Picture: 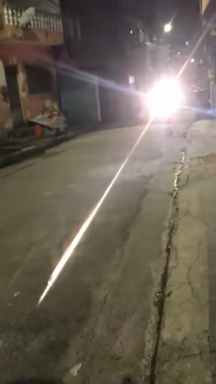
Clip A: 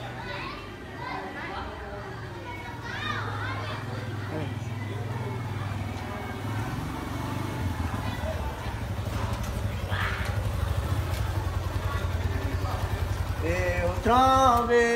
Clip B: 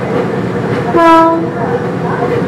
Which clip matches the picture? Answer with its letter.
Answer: A